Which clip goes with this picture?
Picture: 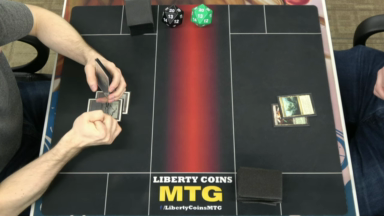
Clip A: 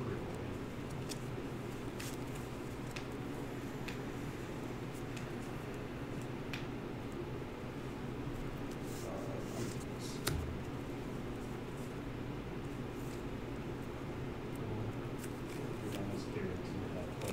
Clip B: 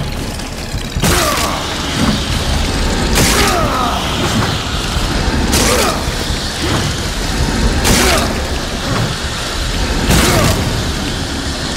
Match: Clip A